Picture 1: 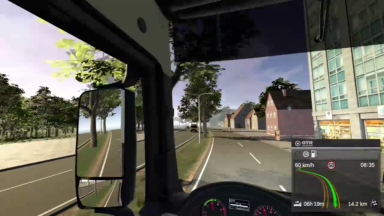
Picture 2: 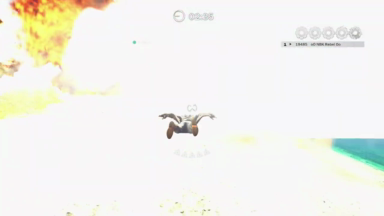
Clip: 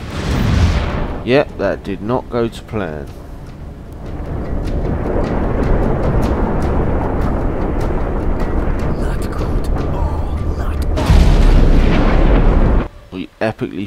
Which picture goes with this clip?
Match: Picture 2